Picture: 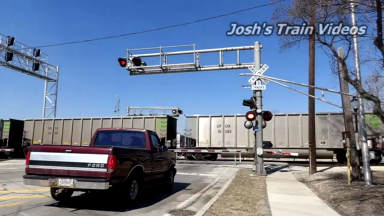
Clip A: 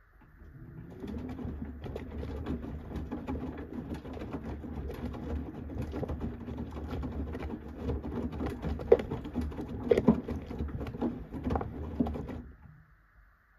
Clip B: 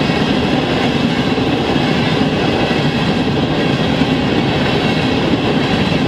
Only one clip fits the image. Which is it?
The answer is B